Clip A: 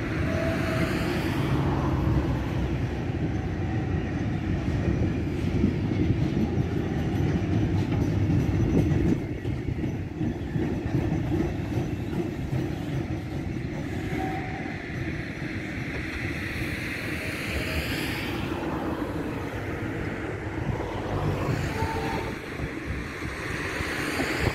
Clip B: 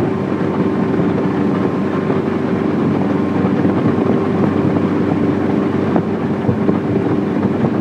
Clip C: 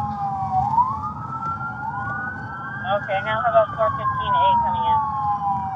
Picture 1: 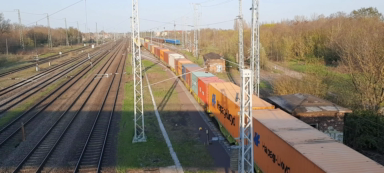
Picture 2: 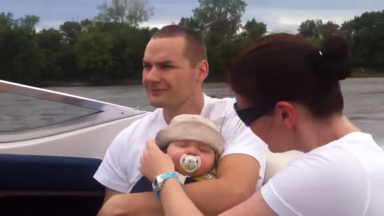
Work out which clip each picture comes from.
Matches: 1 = A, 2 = B